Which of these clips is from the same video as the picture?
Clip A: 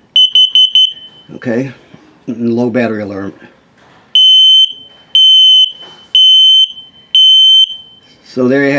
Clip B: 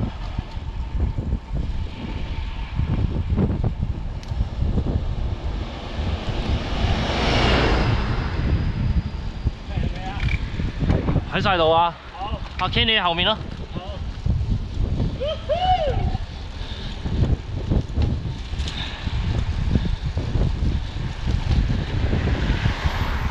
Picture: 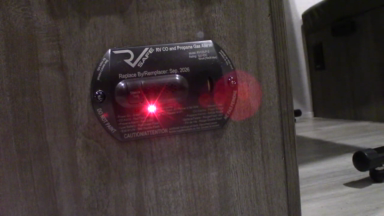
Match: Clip A